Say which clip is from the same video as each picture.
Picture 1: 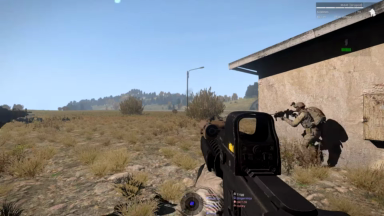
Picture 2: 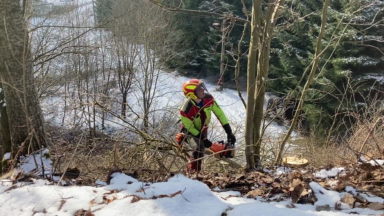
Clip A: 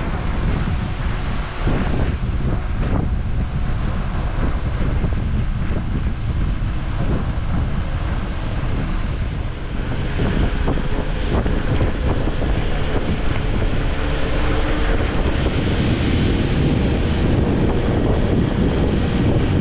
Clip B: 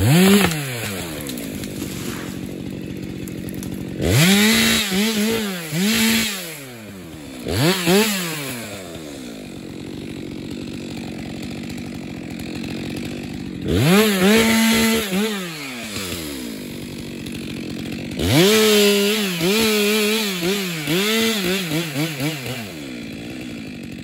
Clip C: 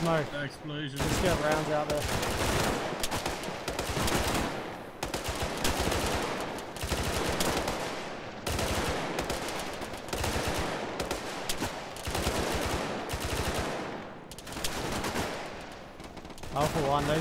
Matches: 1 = C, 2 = B